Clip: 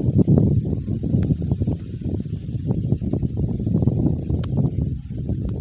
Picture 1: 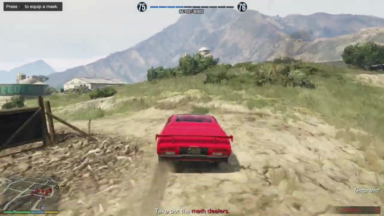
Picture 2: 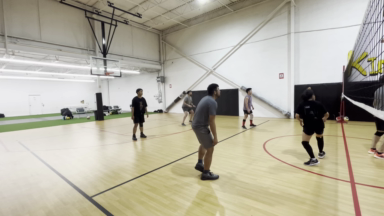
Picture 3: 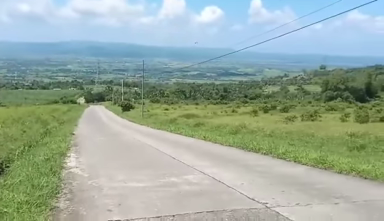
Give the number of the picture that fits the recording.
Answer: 3